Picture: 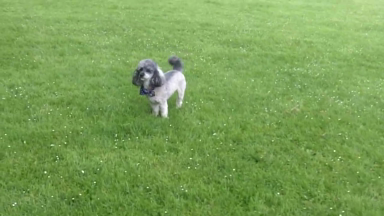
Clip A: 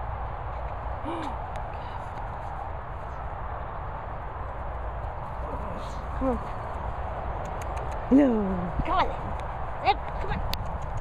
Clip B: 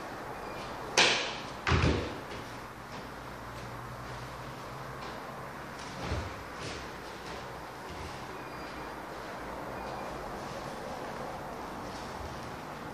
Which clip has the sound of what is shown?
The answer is A